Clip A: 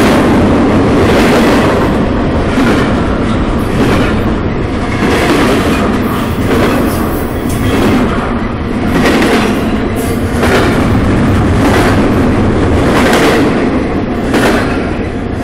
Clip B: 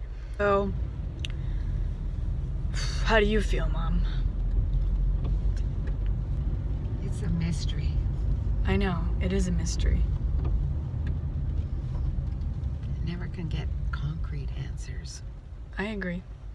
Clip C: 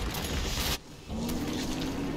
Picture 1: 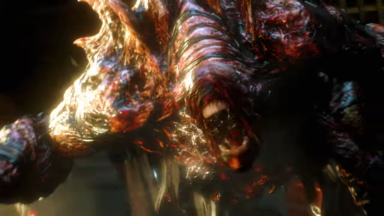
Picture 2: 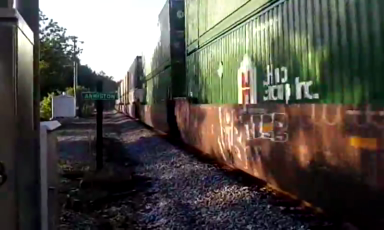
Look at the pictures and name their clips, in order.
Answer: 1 C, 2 A